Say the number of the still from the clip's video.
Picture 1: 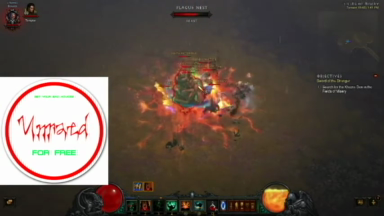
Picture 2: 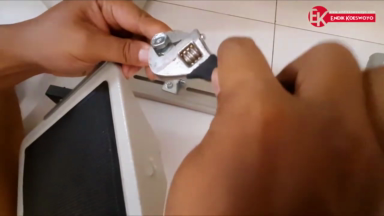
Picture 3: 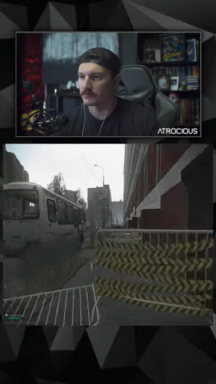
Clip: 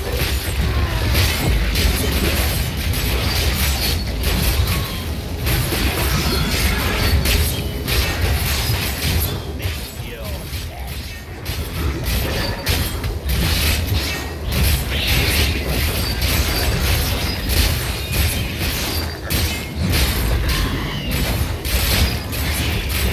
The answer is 1